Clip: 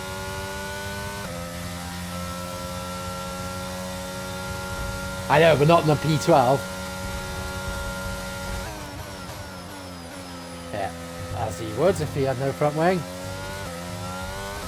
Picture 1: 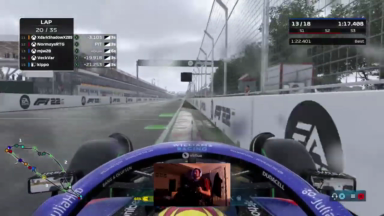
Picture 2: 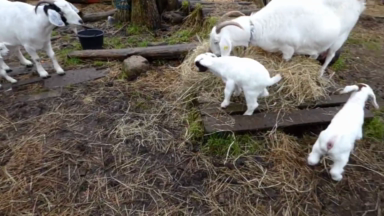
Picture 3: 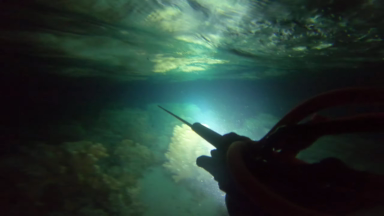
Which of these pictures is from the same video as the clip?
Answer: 1